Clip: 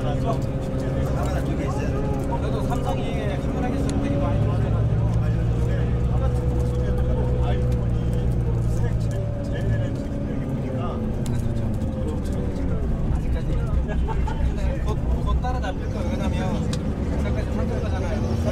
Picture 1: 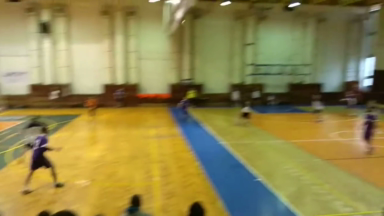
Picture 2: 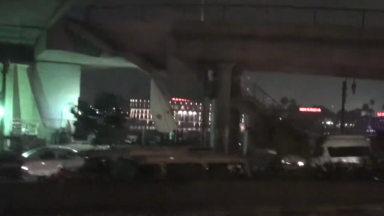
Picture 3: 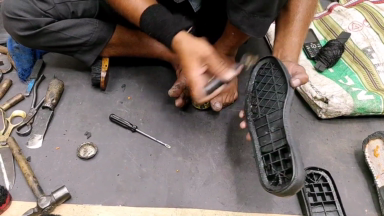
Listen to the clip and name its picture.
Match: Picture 2